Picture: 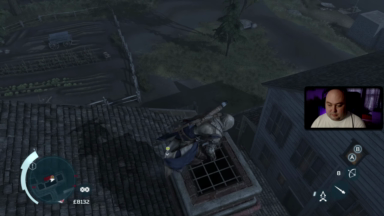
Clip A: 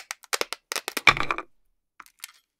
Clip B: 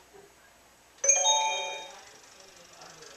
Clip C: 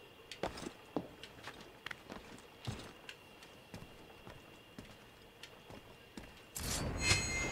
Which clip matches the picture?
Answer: C